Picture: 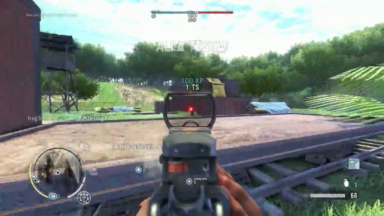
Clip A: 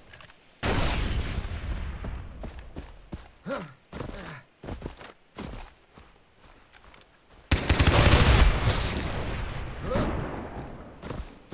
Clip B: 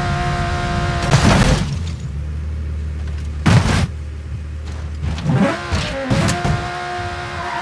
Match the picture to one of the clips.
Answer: A